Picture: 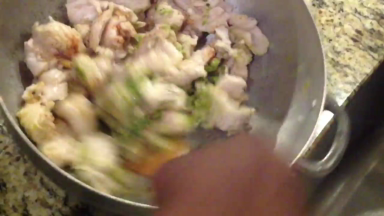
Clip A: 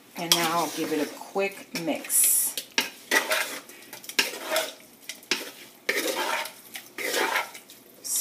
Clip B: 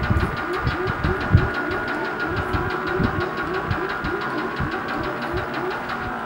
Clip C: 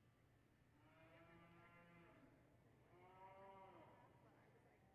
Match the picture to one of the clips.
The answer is A